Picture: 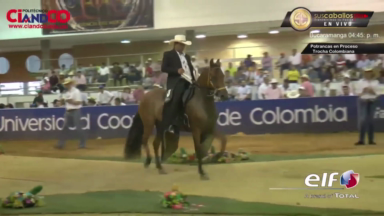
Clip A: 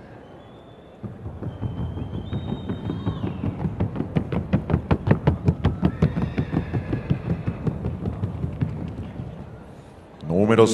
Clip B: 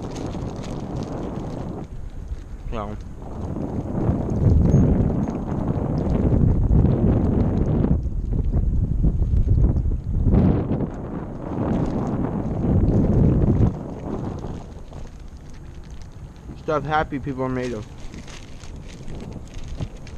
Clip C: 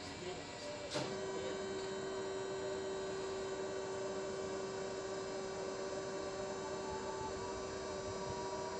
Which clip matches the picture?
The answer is A